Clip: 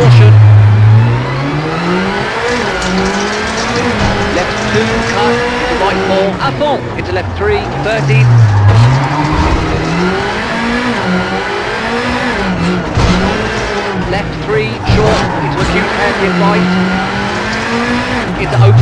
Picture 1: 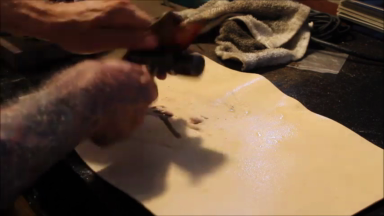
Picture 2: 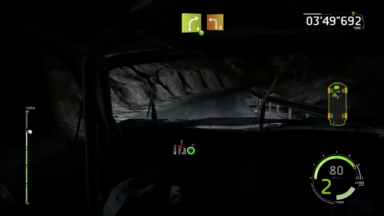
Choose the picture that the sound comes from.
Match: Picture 2